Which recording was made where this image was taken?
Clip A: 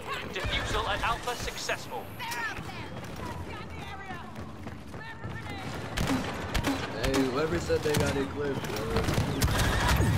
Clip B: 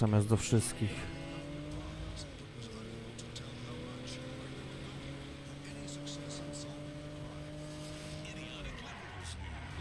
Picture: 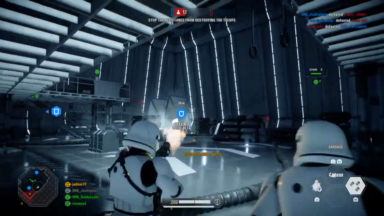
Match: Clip A